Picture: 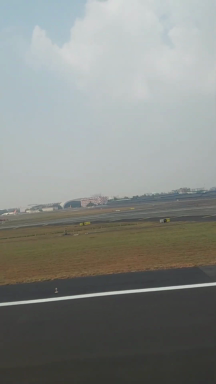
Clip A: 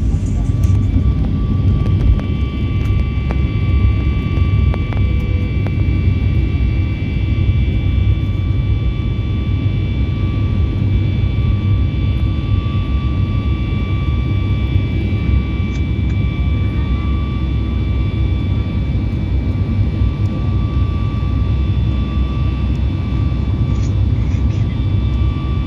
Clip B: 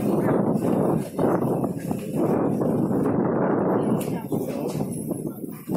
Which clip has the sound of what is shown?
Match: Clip A